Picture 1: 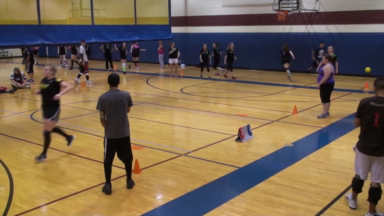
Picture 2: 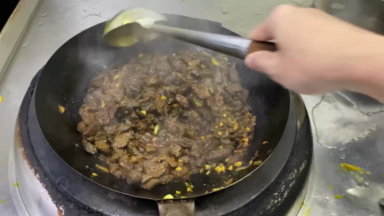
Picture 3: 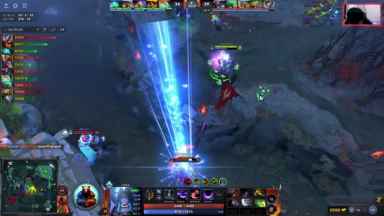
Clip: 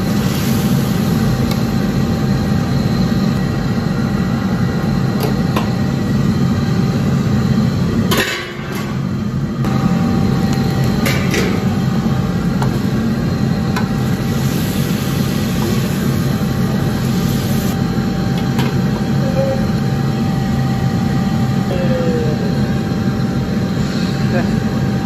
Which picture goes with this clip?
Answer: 2